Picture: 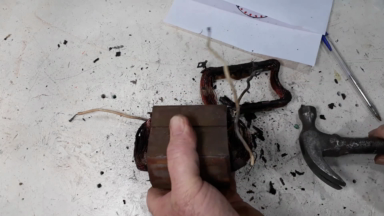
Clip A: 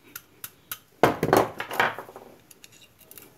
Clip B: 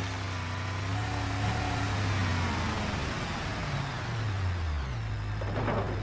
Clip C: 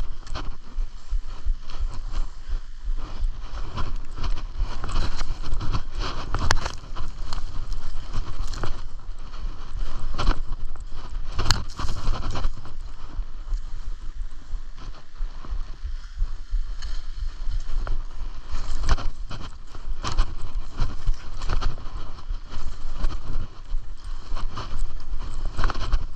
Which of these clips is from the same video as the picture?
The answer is A